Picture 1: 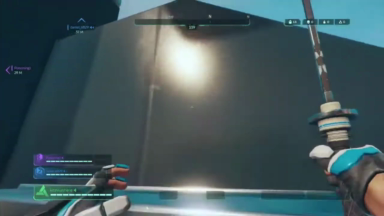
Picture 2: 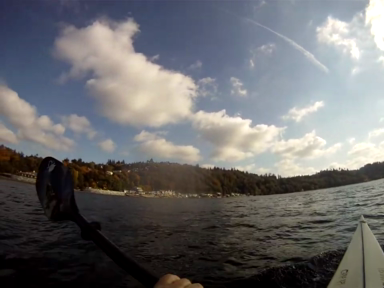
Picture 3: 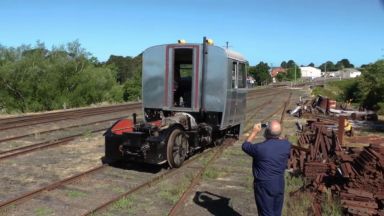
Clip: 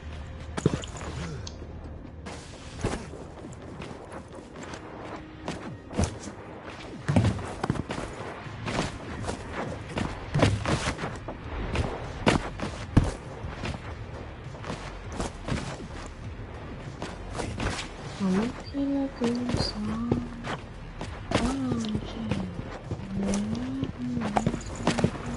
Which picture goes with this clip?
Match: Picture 1